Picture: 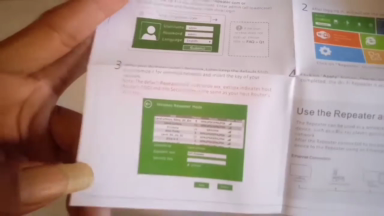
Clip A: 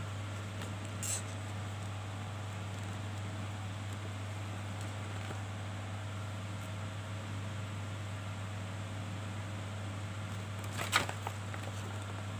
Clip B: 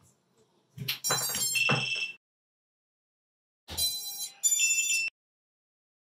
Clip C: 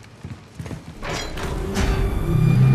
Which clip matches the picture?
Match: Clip A